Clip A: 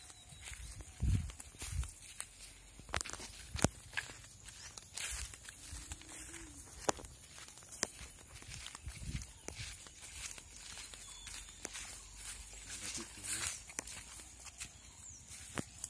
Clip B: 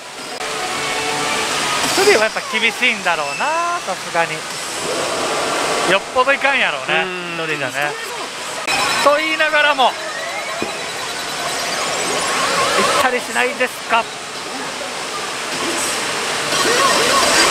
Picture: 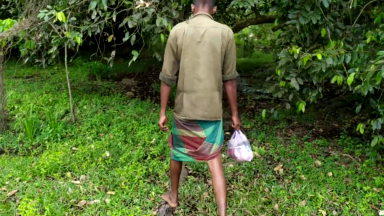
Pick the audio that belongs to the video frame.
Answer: A